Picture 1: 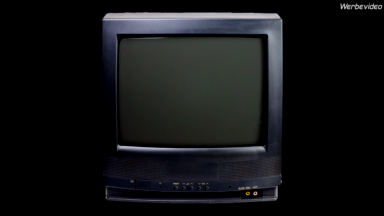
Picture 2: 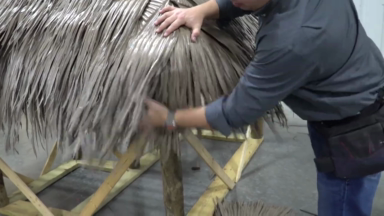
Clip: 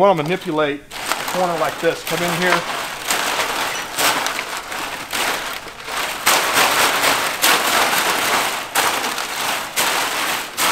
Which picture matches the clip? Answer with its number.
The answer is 2